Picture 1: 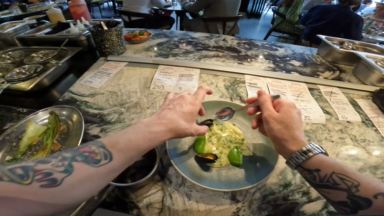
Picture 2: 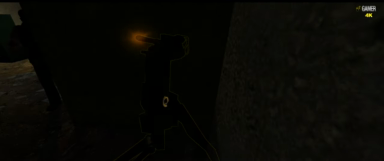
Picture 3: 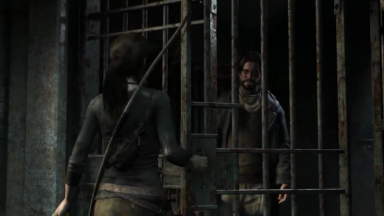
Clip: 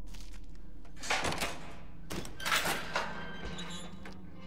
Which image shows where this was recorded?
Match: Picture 3